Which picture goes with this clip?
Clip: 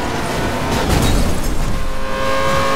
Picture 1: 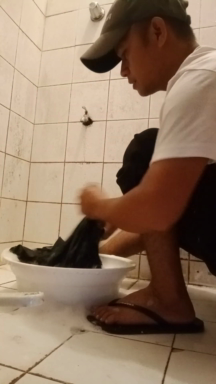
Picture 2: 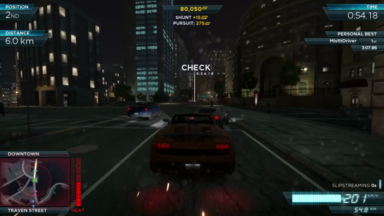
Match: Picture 2